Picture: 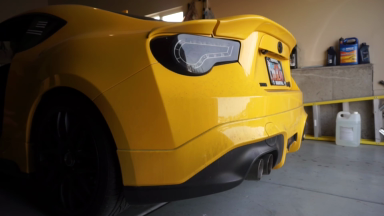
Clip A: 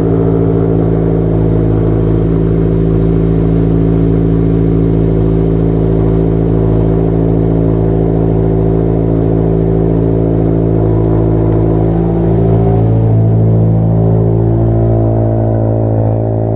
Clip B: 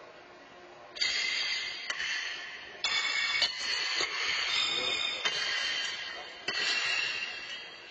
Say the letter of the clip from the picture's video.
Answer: A